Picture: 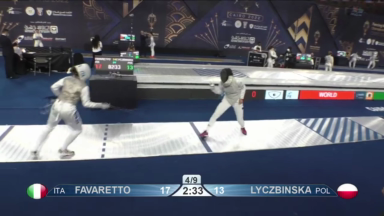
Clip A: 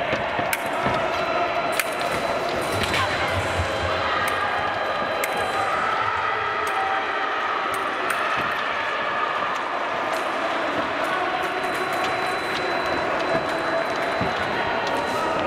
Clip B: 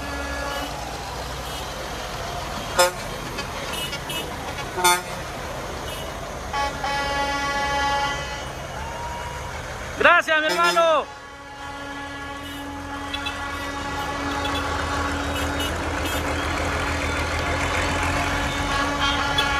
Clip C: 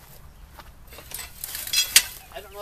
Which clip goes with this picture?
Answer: A